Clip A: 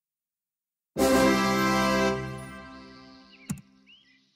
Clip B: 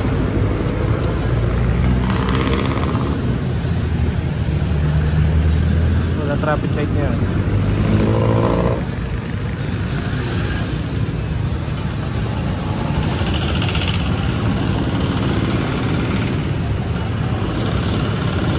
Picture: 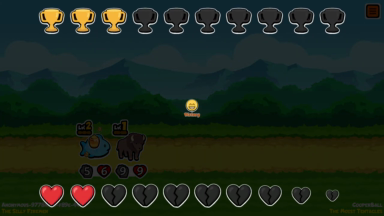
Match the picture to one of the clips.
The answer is A